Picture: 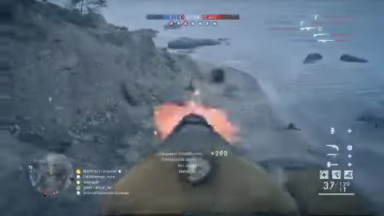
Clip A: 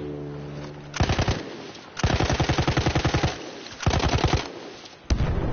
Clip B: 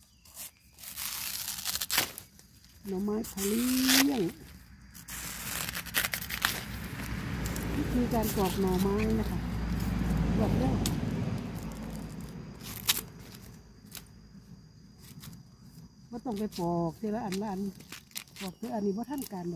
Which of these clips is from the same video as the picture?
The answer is A